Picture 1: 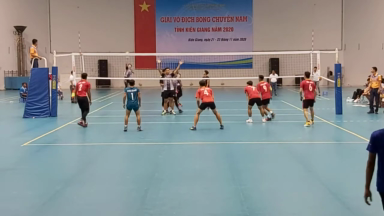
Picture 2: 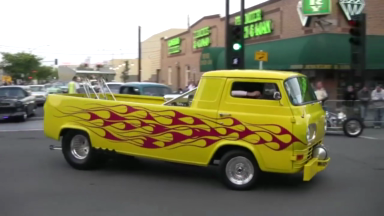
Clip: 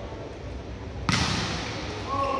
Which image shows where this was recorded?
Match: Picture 1